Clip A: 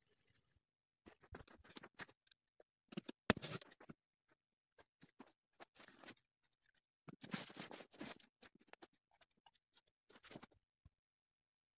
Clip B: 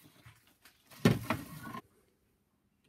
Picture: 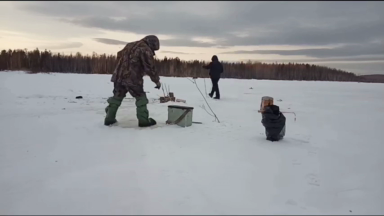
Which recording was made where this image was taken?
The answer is A